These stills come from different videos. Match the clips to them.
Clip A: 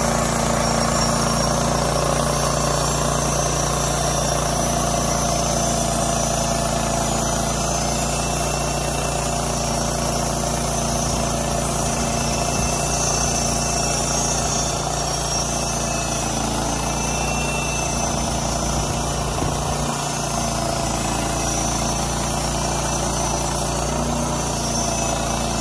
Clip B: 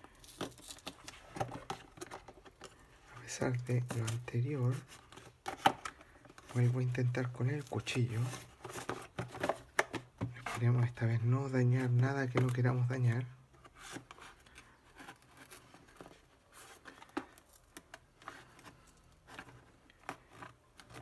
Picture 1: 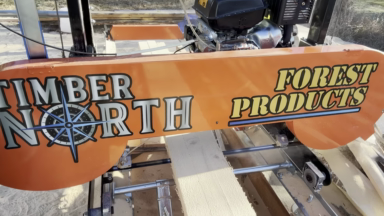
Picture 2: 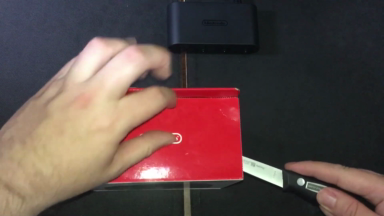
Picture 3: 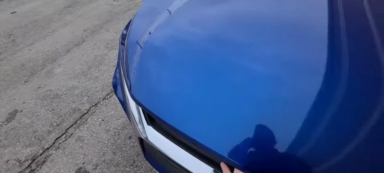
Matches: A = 1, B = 2